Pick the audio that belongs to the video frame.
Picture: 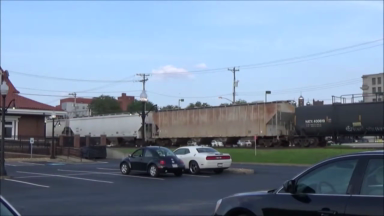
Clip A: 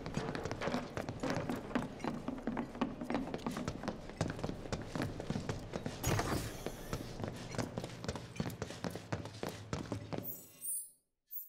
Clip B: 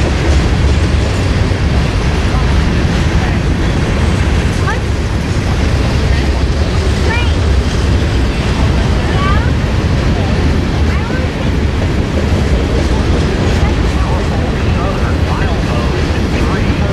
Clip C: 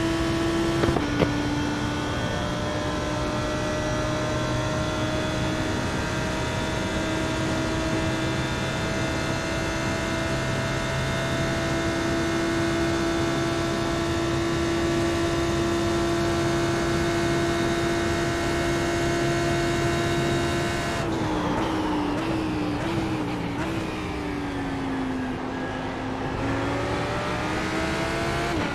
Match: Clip B